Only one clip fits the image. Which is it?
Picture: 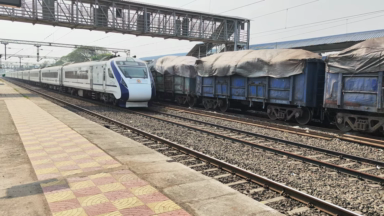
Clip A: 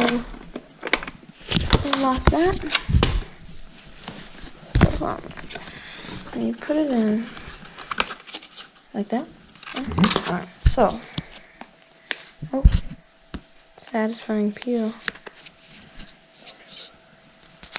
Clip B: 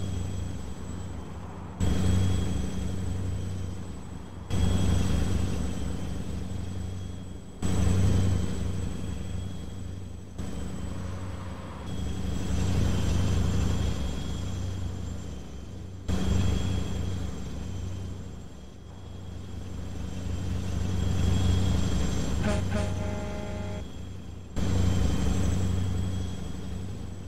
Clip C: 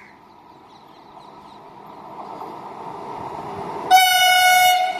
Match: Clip C